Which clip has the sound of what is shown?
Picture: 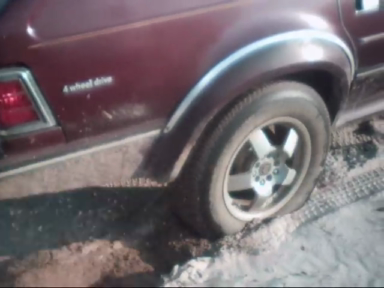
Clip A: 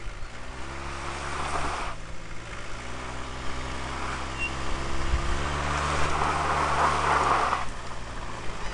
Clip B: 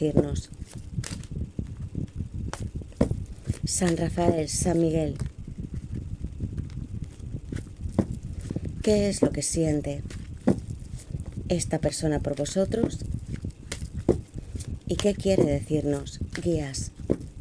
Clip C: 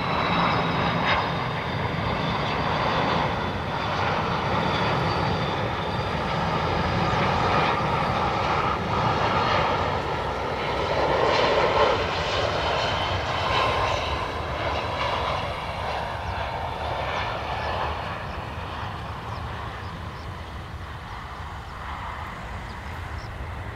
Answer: A